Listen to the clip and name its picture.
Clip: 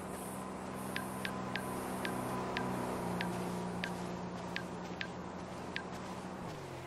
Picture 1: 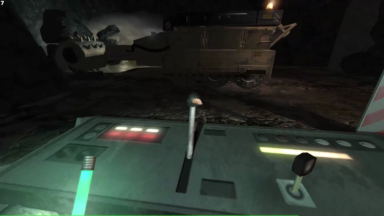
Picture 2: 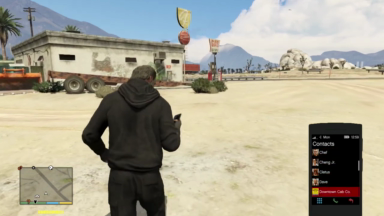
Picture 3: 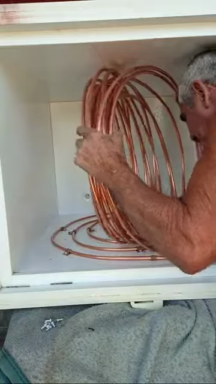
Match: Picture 2